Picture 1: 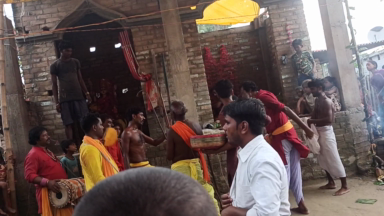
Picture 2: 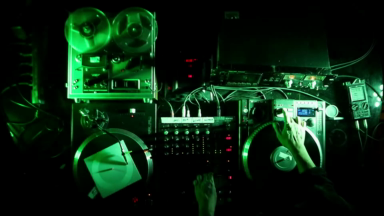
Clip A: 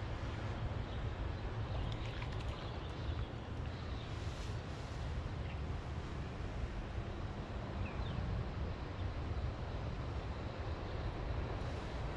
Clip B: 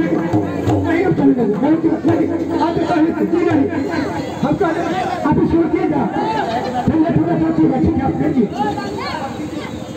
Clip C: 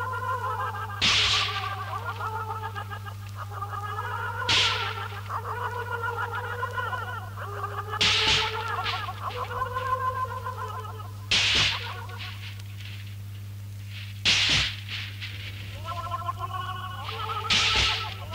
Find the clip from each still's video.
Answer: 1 B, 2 C